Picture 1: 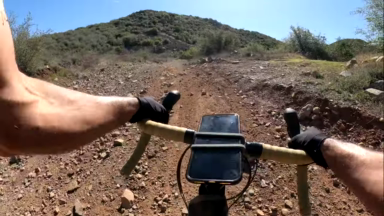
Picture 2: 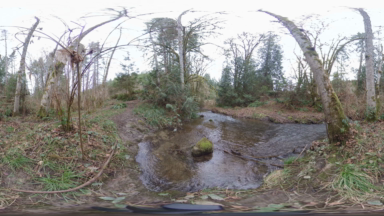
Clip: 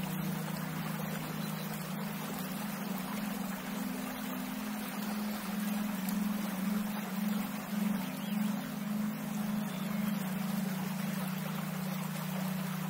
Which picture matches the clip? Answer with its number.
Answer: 2